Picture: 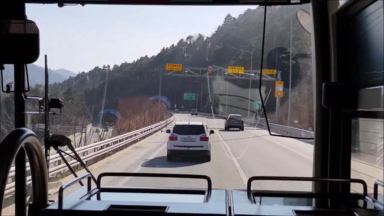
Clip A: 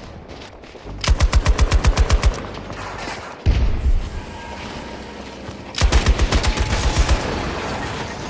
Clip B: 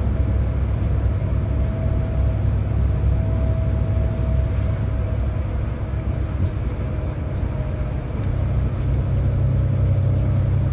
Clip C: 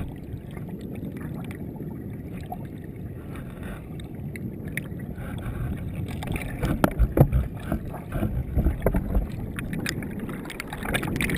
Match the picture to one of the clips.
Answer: B